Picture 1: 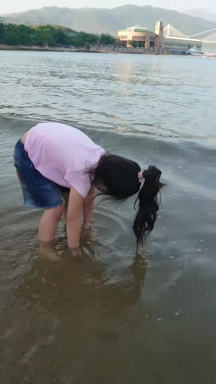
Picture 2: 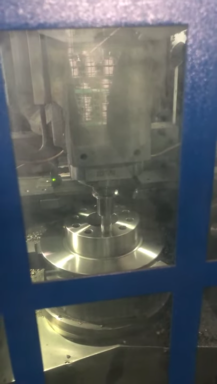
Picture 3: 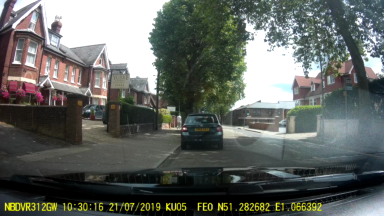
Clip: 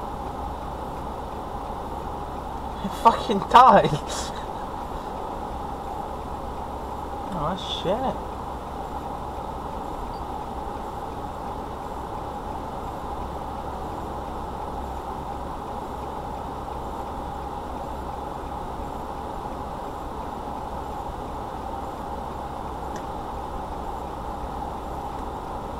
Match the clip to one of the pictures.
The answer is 3